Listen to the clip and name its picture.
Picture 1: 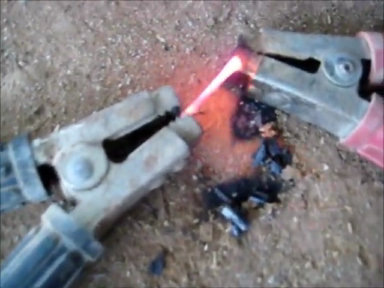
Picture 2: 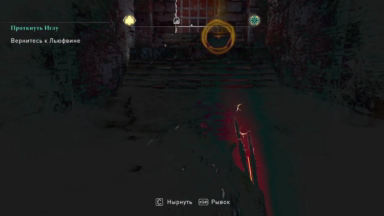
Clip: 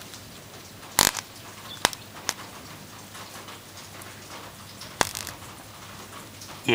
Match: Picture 1